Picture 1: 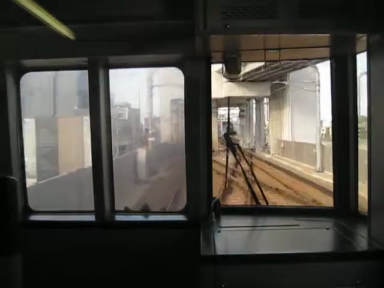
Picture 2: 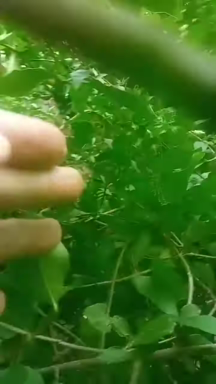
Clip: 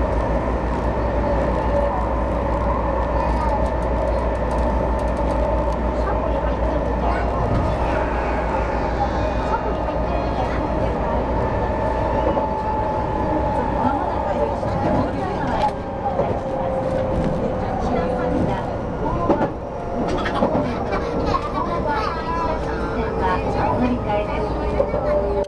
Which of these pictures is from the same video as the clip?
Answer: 1